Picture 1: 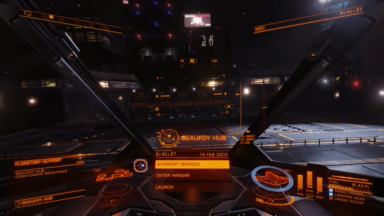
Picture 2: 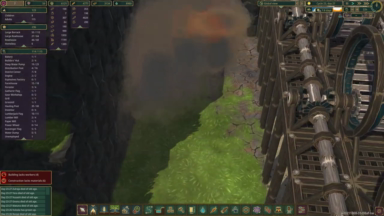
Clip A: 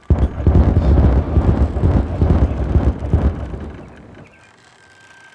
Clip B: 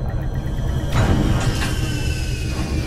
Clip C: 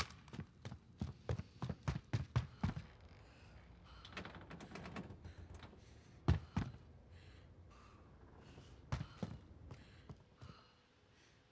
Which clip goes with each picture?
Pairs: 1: B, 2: A